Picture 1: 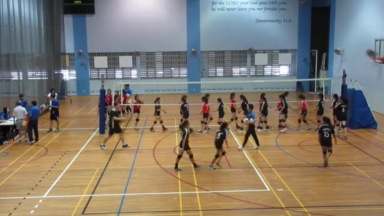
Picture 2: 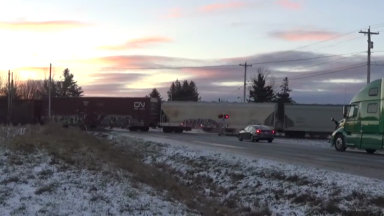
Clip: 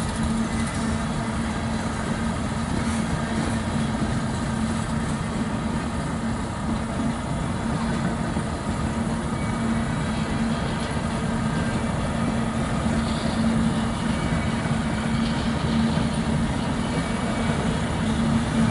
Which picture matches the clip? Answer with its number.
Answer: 2